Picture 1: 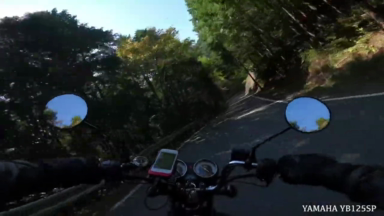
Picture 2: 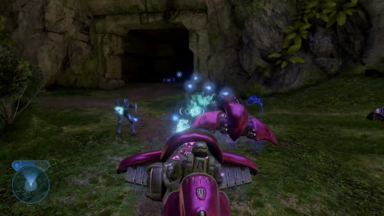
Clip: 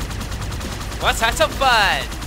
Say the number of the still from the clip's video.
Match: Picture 2